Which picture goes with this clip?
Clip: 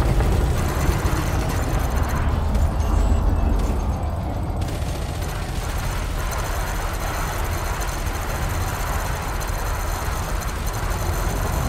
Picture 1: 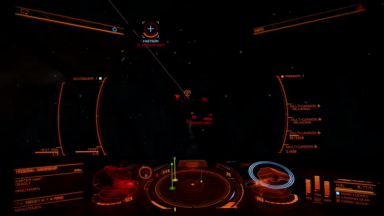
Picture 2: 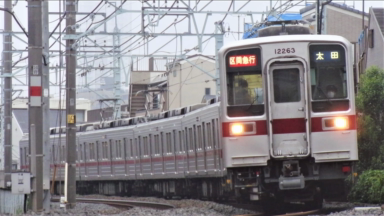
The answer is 1